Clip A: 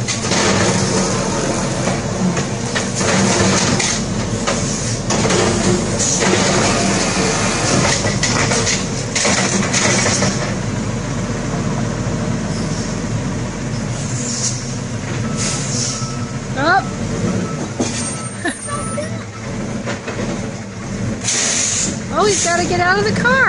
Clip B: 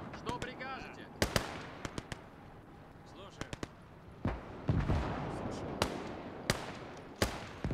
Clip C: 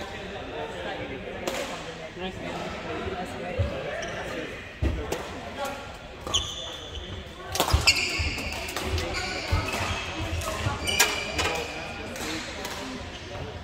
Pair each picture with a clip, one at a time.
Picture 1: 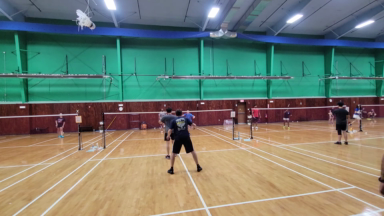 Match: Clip C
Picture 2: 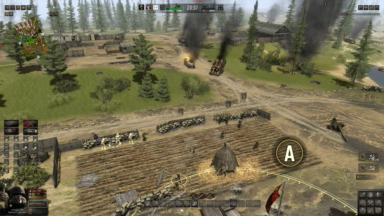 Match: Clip B